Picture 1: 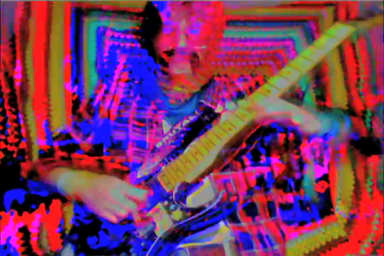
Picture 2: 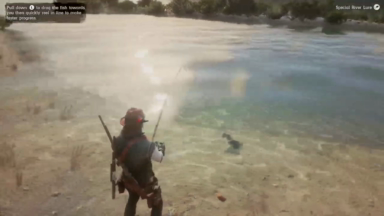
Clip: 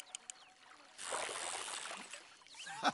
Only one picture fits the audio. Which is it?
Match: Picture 2